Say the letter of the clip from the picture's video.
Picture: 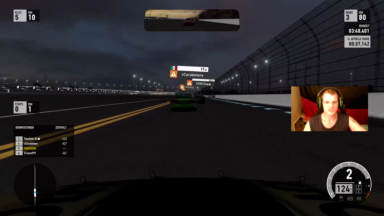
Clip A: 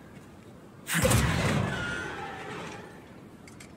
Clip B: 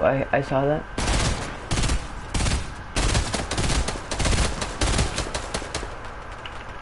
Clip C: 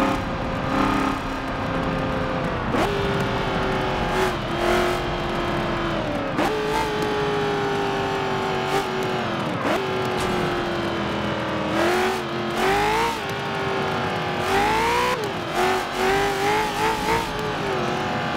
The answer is C